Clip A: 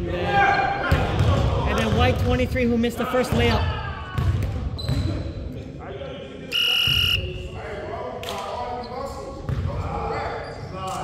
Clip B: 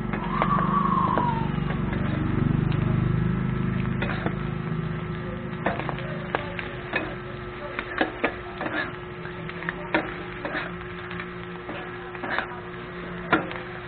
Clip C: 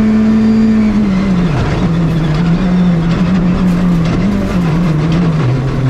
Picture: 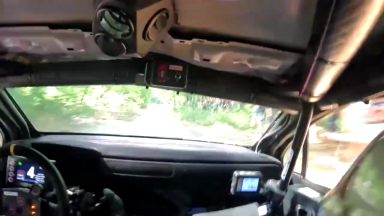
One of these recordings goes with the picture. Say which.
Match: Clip C